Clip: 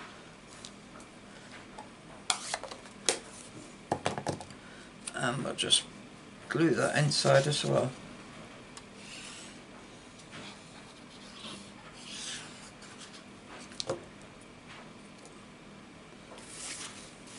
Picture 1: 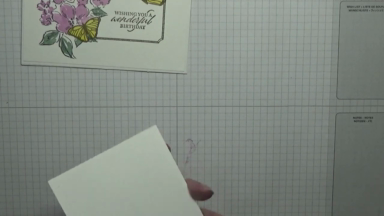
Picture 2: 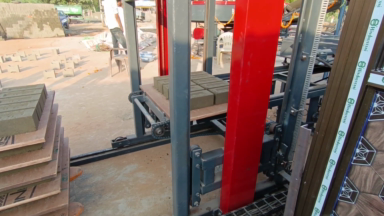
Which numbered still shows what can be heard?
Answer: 1